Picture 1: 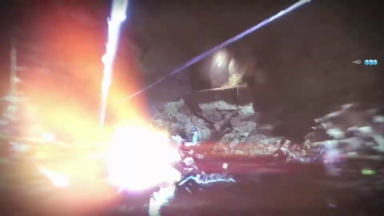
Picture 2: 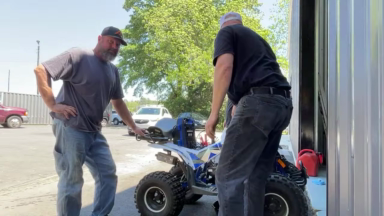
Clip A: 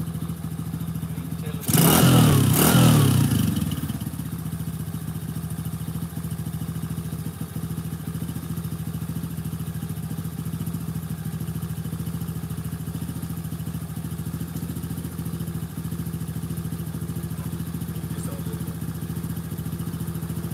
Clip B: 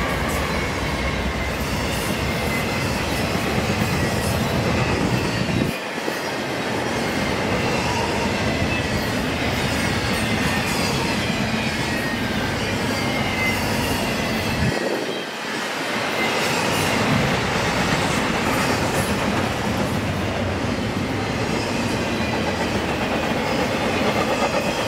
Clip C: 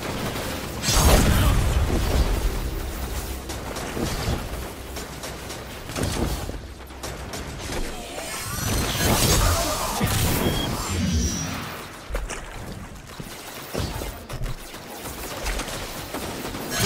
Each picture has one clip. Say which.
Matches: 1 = C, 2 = A